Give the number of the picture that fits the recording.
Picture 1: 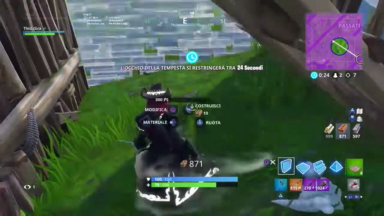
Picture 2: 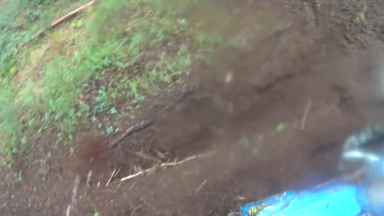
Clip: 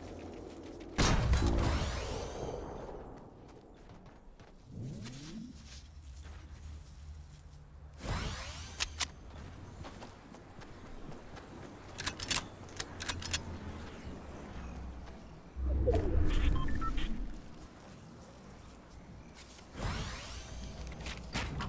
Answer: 1